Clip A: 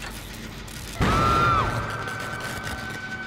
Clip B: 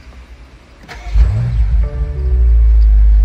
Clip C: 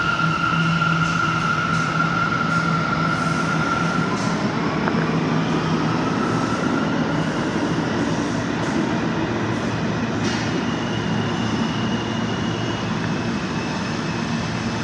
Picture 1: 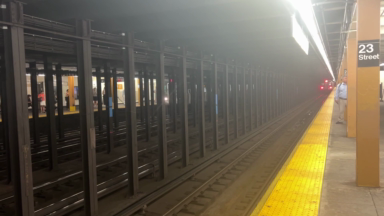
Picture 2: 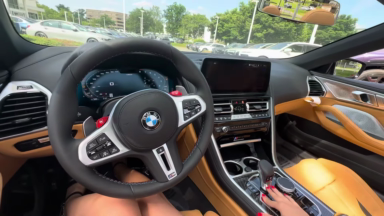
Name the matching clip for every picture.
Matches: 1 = C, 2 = B